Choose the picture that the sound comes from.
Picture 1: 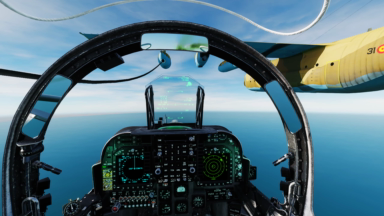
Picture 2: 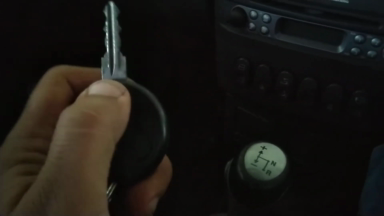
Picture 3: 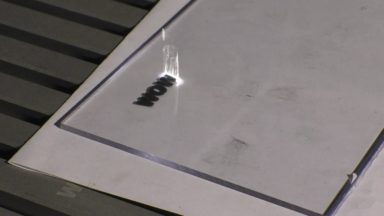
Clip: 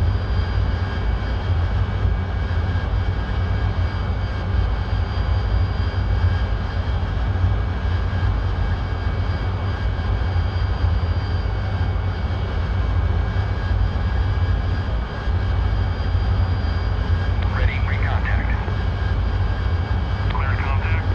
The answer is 1